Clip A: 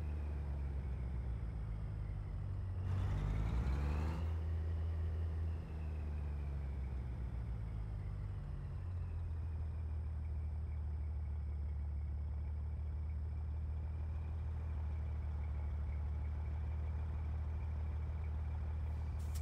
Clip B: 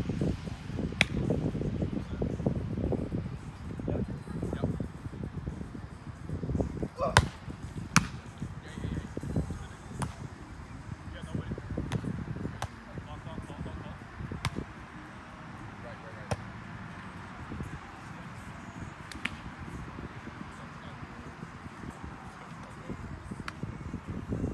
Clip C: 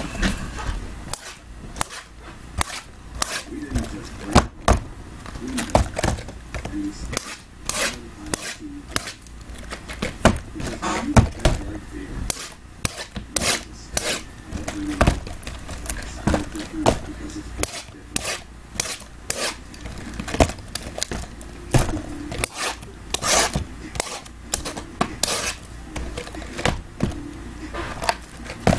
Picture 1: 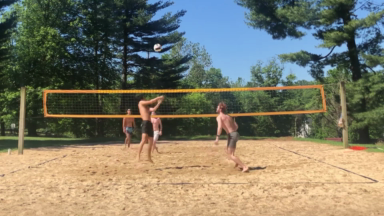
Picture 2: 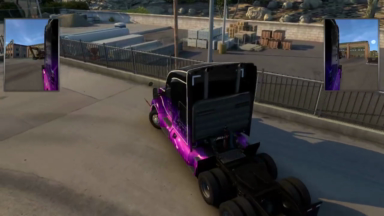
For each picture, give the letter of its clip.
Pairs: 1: B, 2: A